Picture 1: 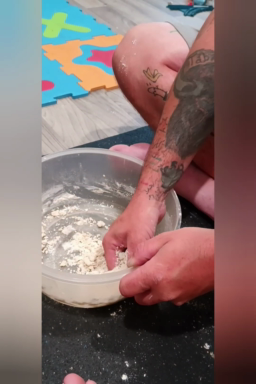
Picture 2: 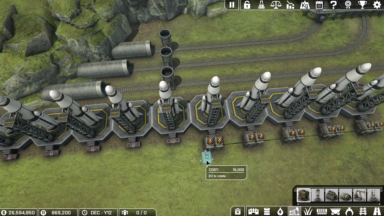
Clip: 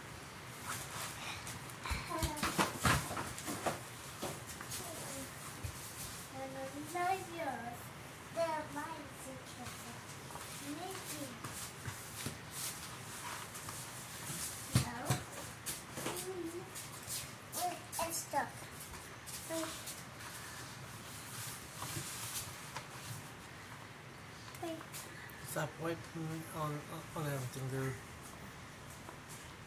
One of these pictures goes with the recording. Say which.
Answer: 1